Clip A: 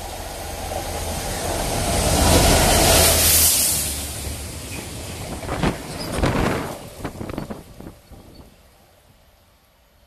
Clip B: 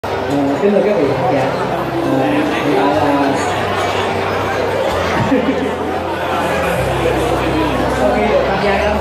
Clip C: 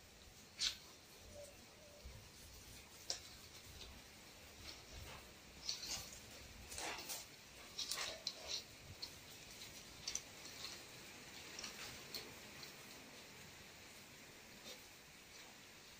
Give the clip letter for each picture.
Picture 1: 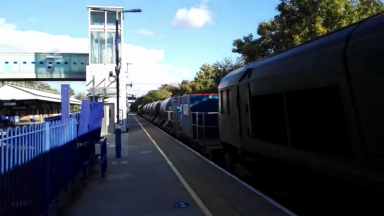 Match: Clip A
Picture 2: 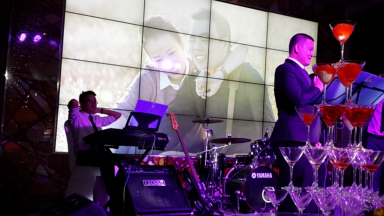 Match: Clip B